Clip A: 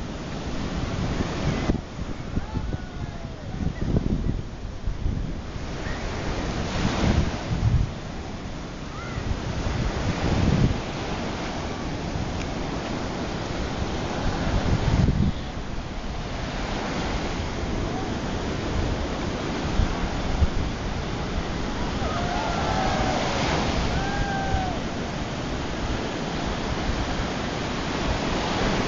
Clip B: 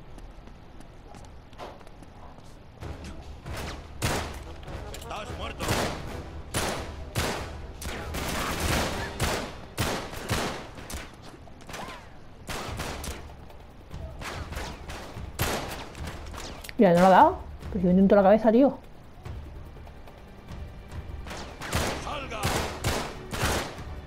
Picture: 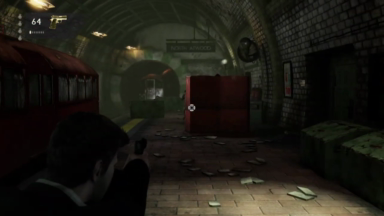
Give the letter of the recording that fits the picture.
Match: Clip B